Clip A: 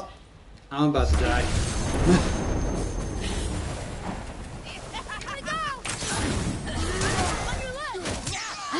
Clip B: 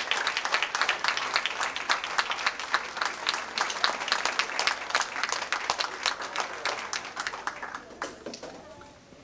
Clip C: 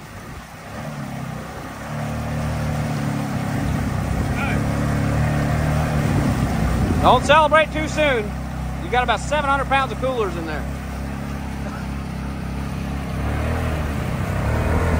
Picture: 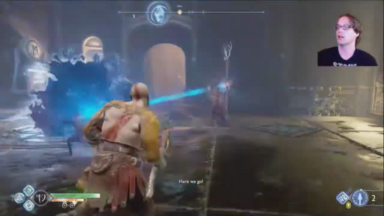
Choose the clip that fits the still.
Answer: A